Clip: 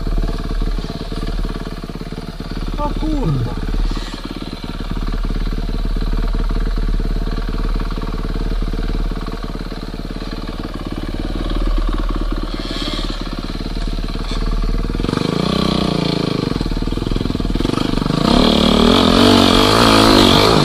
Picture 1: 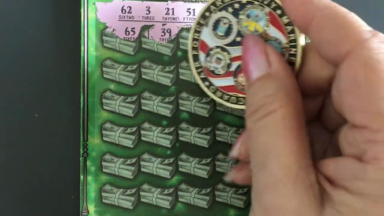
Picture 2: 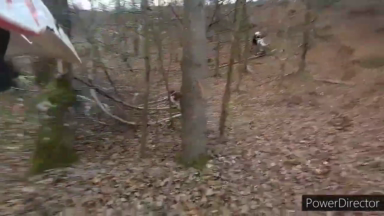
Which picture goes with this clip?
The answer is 2